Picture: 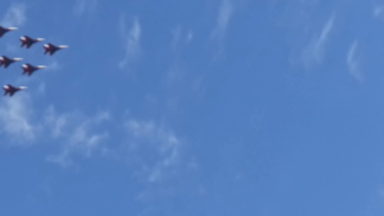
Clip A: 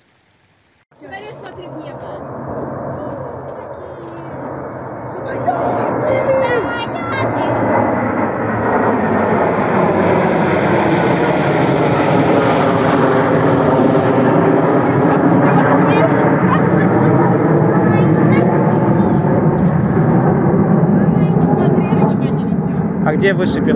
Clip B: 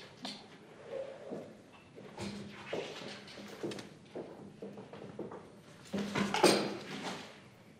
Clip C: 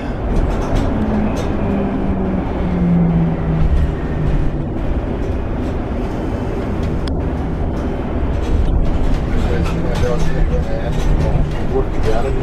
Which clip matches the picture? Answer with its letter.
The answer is A